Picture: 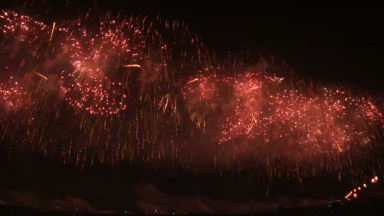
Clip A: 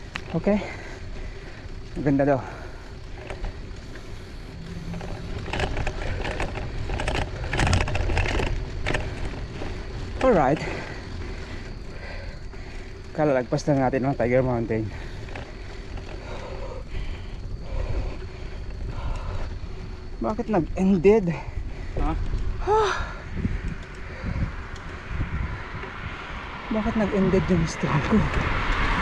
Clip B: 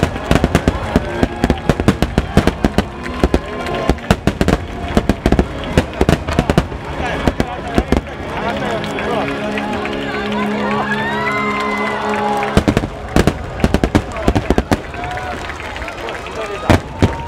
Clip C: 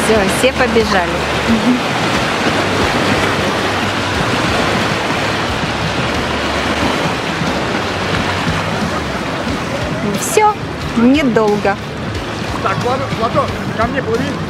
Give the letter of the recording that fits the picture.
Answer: B